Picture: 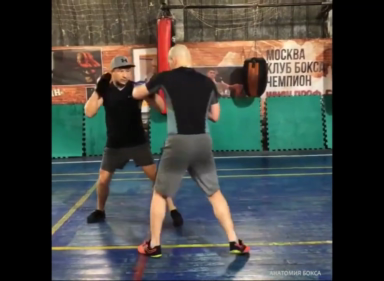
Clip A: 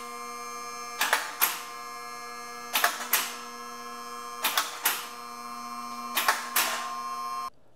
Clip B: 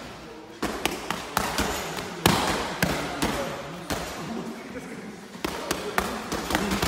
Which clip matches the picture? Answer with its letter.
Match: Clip B